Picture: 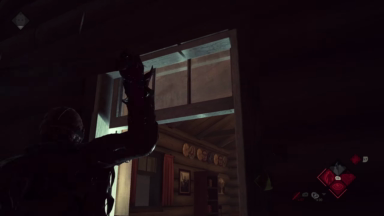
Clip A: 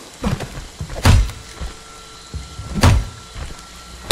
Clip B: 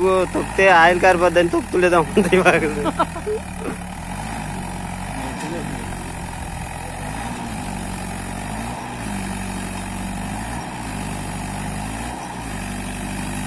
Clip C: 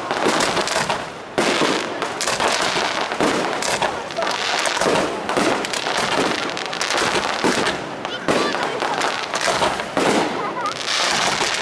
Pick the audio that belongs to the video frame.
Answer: A